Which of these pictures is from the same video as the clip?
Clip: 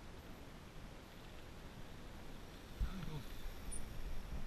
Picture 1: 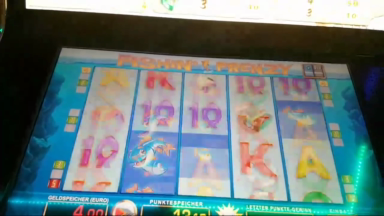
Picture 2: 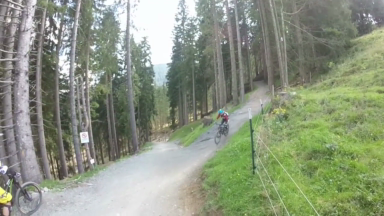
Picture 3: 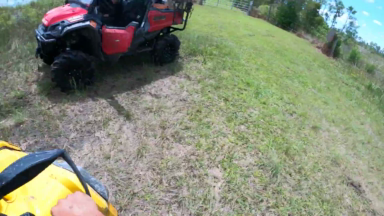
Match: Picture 2